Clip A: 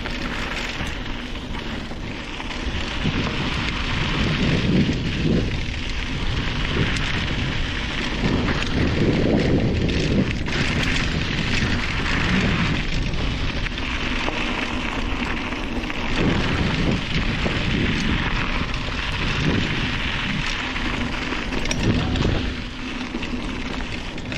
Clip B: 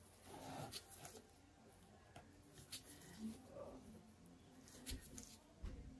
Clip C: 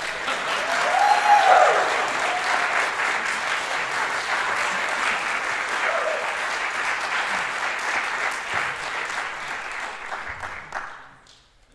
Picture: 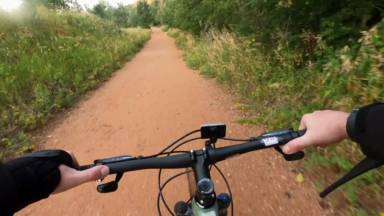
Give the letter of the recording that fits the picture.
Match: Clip A